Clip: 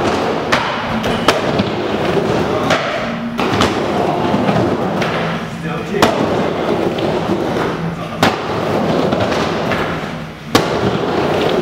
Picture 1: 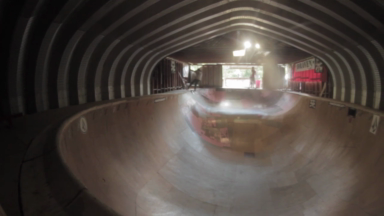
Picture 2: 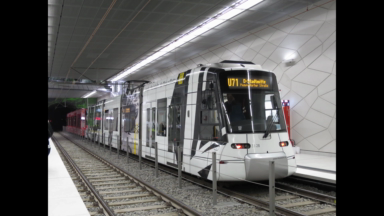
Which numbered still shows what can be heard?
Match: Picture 1